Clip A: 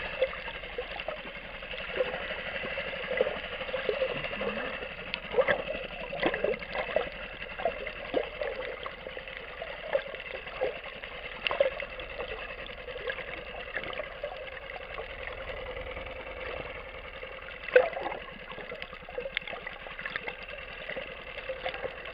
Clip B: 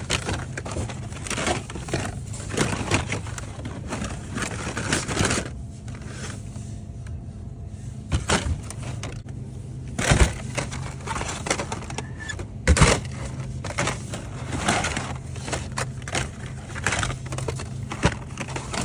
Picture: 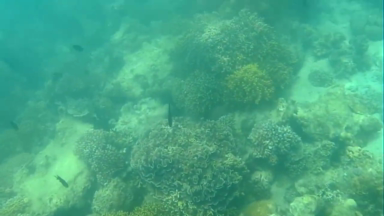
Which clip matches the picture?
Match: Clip A